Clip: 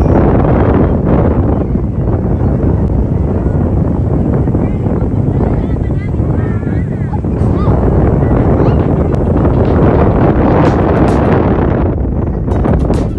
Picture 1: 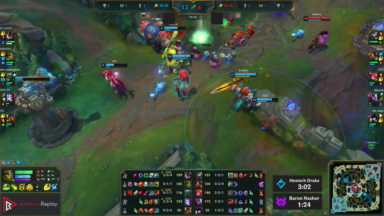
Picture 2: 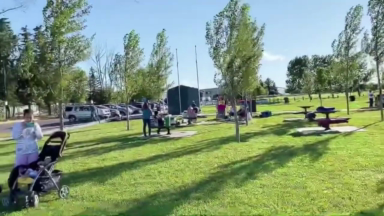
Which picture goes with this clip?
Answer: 2